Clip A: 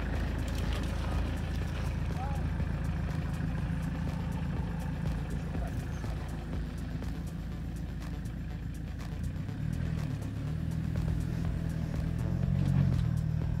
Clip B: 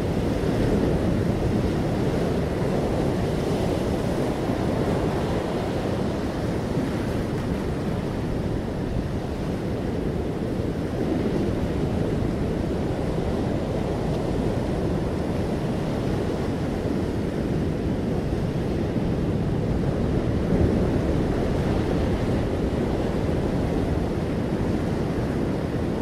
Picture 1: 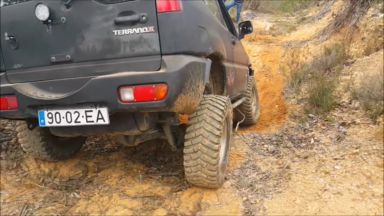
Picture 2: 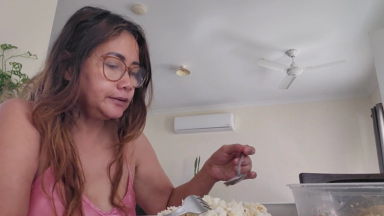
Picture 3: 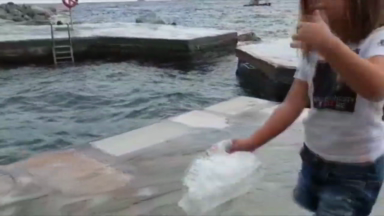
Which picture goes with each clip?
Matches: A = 1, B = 3